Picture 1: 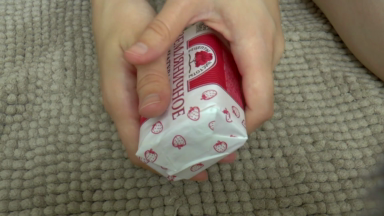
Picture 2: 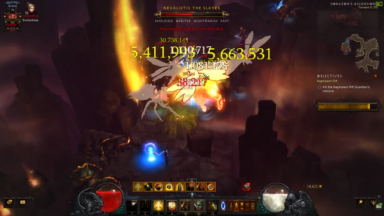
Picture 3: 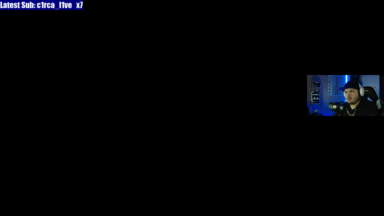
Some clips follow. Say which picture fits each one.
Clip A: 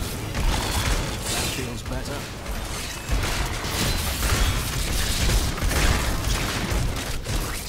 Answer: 2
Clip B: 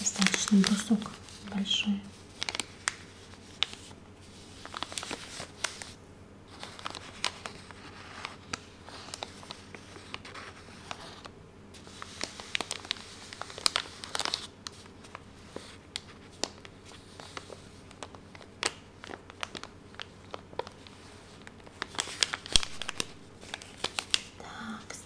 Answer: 1